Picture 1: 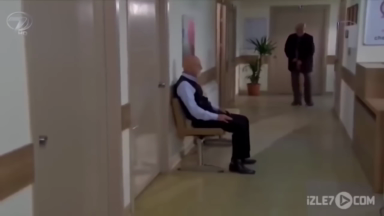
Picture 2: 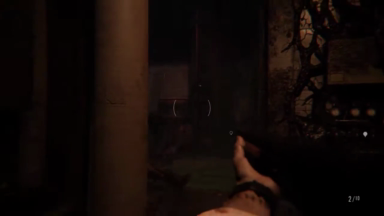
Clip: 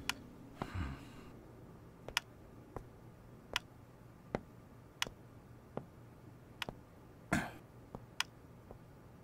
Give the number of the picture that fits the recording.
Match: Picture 1